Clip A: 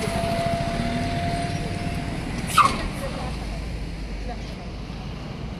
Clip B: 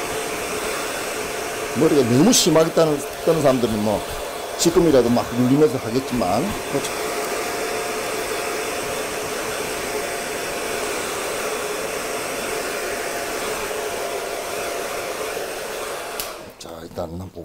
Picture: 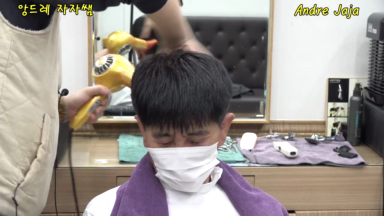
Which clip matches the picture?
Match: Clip B